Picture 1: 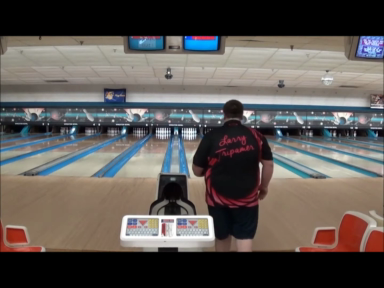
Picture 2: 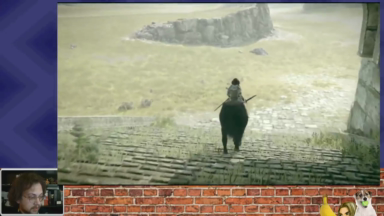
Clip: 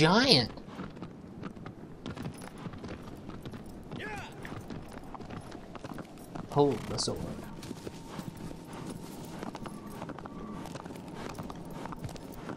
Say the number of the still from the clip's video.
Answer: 2